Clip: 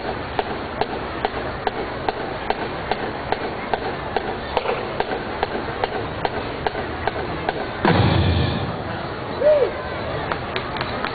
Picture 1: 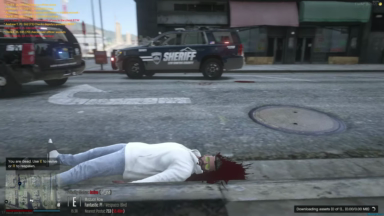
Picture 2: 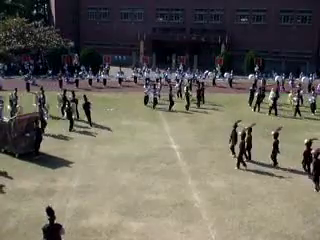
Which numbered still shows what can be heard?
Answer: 2